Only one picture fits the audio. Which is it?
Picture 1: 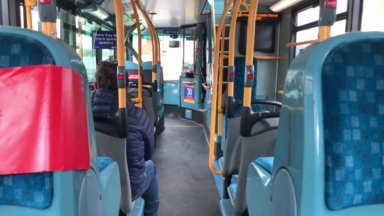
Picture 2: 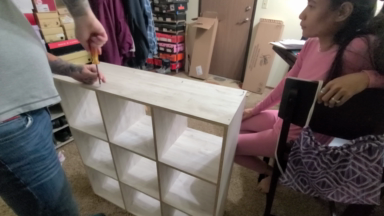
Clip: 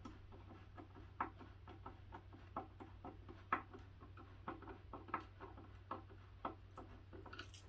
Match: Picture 2